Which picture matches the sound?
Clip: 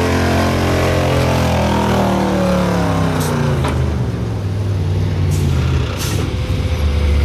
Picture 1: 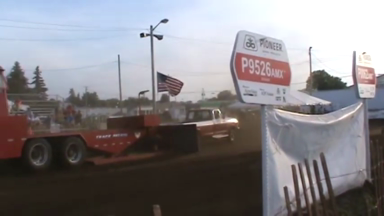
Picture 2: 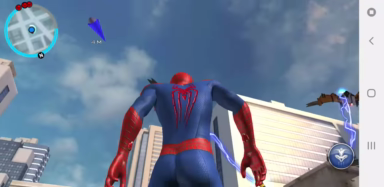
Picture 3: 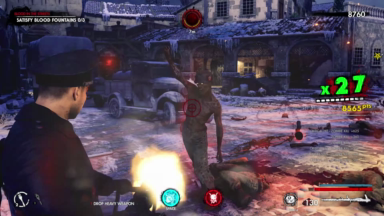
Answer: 1